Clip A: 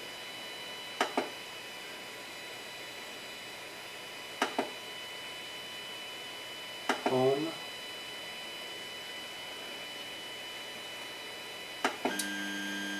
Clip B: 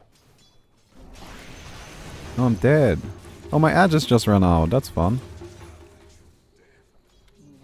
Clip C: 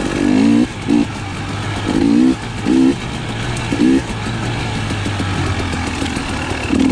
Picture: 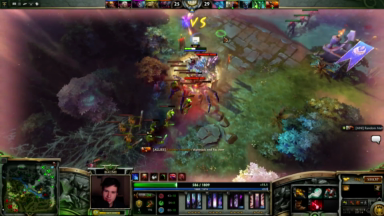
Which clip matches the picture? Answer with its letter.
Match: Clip B